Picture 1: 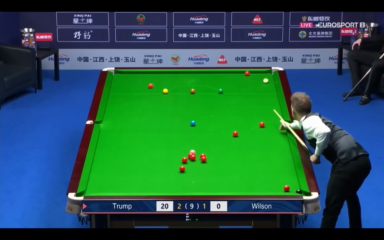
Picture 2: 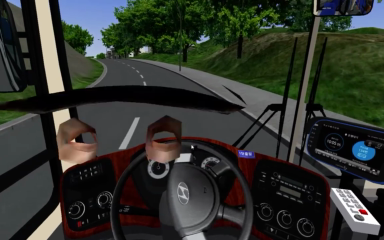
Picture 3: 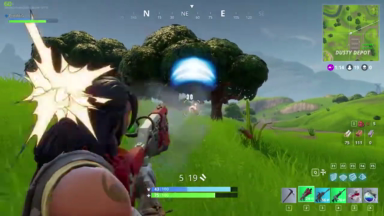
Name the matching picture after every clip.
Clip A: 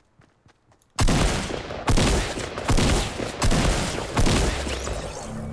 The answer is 3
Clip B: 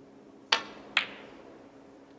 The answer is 1